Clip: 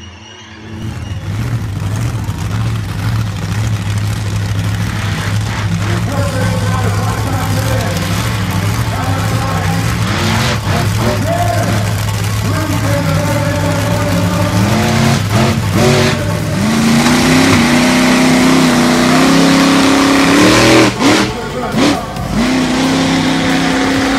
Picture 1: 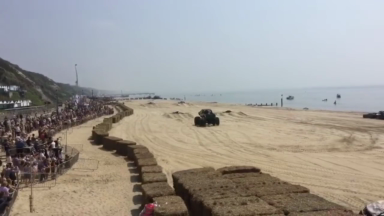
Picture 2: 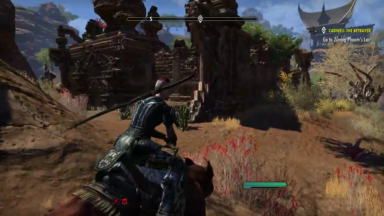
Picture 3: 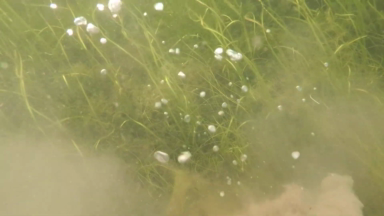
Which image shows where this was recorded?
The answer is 1